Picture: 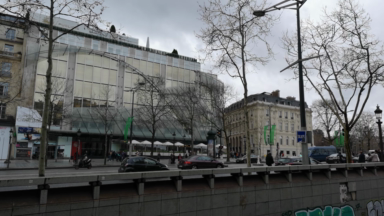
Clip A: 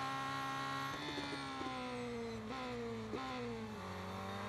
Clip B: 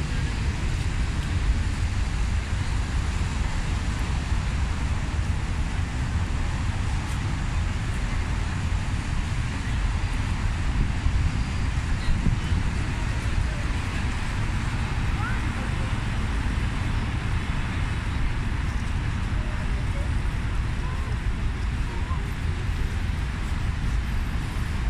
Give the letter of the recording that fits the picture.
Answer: B